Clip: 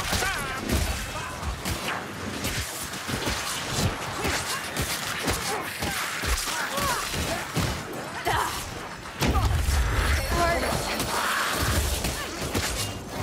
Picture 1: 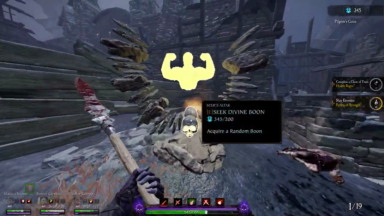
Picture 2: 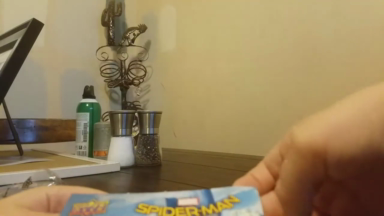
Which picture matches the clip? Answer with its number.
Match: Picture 1